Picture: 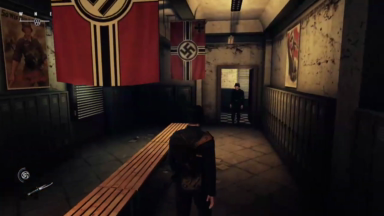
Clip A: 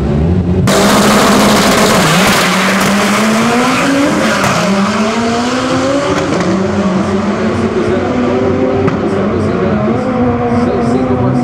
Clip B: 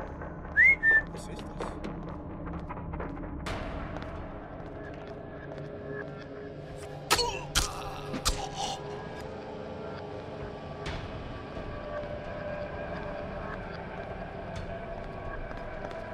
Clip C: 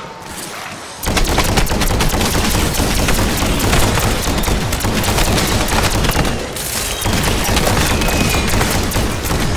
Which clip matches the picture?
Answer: B